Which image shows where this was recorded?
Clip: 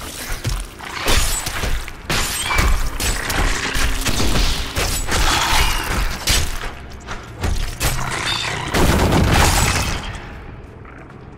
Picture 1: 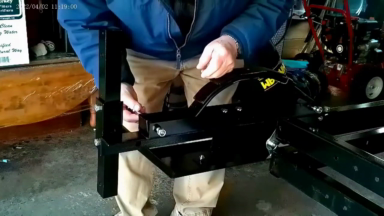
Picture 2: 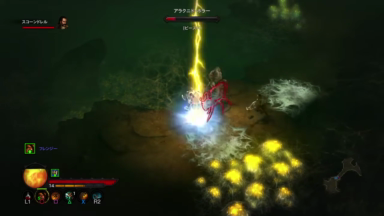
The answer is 2